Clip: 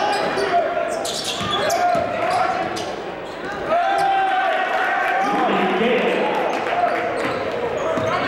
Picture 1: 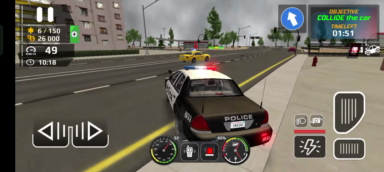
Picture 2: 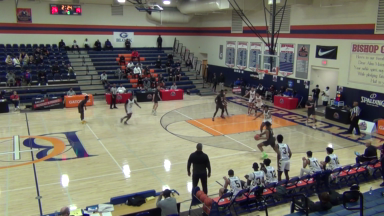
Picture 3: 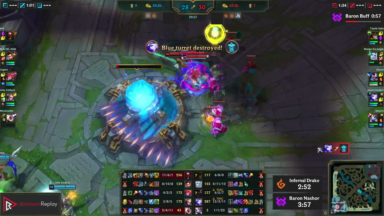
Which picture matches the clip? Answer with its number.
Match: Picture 2